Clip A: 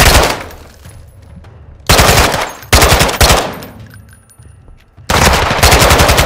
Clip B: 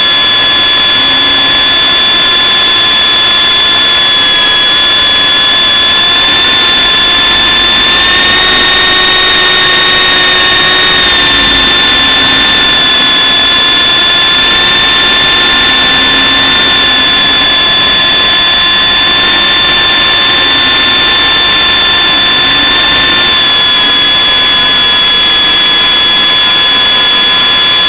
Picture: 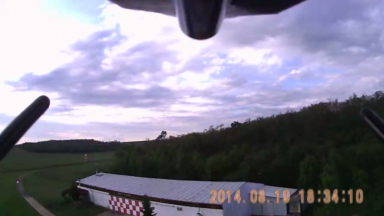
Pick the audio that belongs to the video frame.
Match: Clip B